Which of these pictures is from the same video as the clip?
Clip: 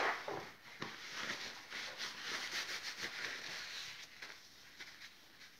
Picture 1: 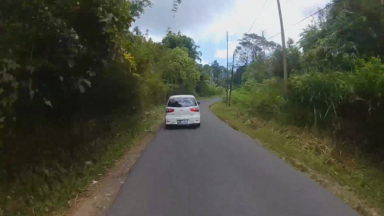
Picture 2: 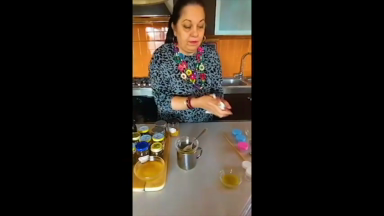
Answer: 2